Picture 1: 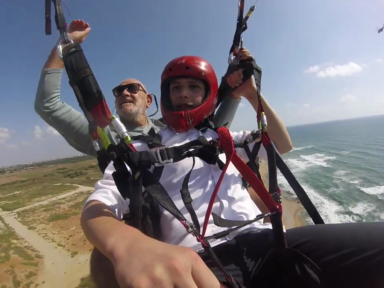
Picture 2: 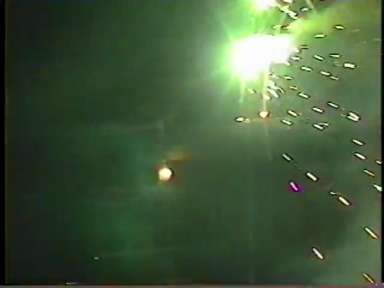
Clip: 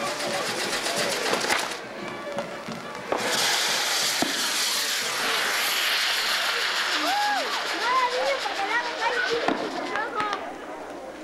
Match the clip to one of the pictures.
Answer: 2